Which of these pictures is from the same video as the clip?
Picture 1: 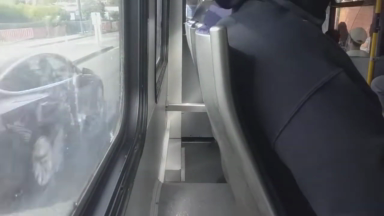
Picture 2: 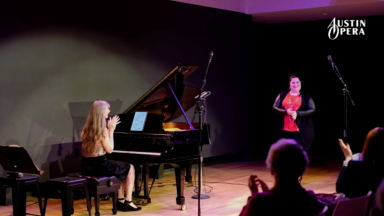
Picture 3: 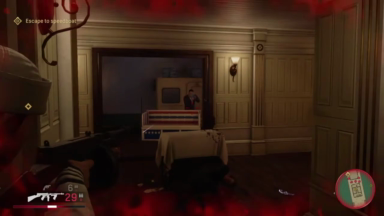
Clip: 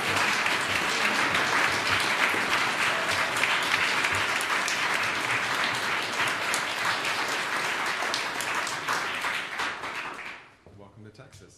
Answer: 2